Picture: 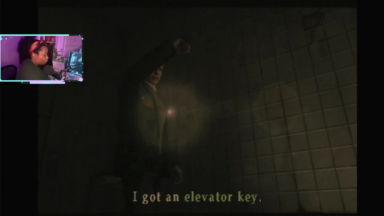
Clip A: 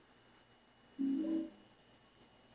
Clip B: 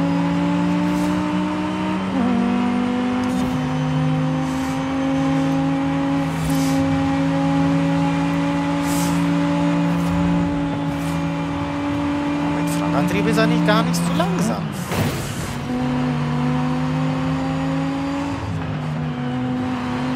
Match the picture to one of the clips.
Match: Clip A